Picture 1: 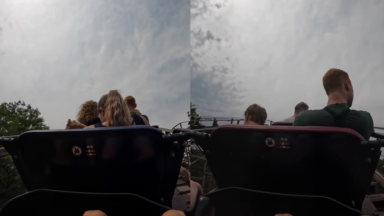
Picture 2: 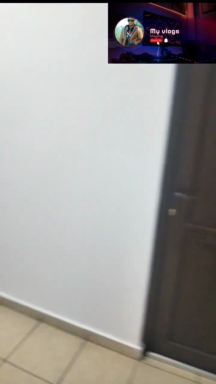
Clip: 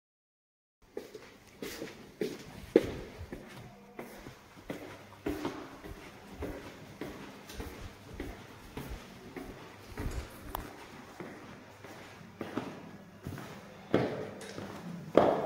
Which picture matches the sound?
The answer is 2